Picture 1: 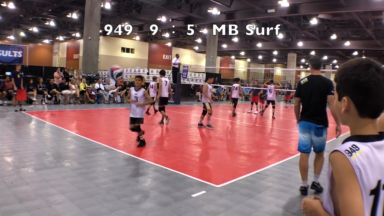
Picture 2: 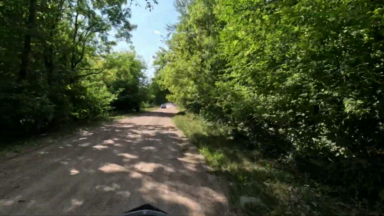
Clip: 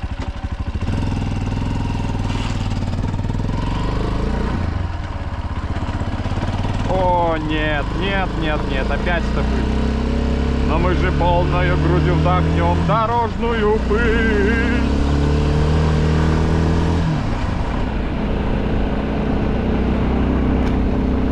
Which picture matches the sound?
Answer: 2